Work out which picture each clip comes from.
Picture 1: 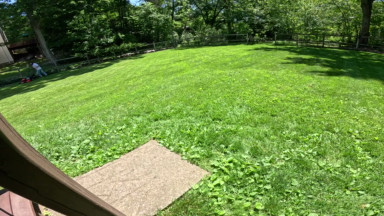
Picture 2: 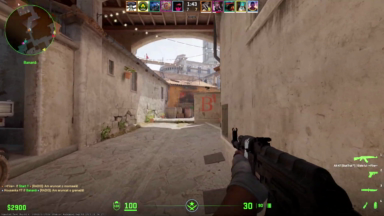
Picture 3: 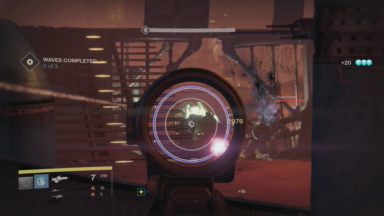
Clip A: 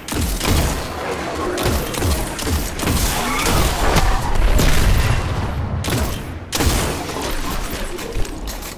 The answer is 3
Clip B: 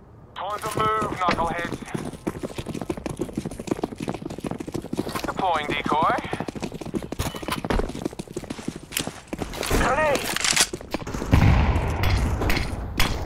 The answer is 2